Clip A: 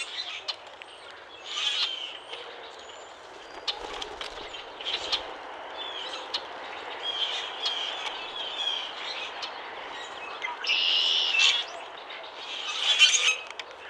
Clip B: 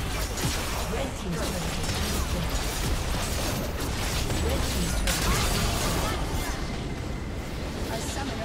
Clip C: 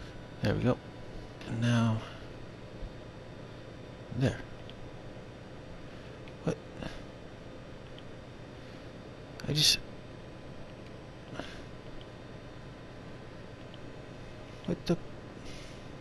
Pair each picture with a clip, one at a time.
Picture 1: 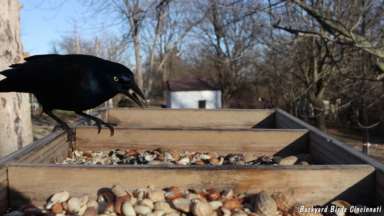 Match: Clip A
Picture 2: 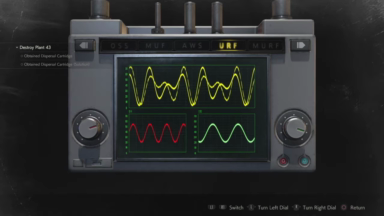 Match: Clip C